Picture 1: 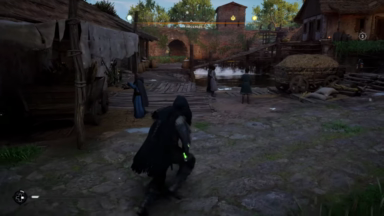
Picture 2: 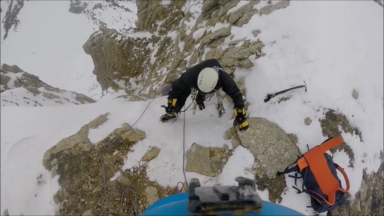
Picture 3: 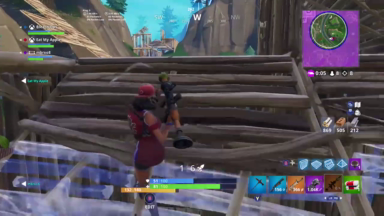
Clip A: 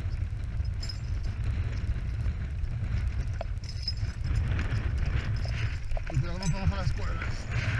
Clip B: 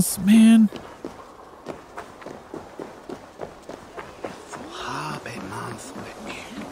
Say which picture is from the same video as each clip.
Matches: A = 2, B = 1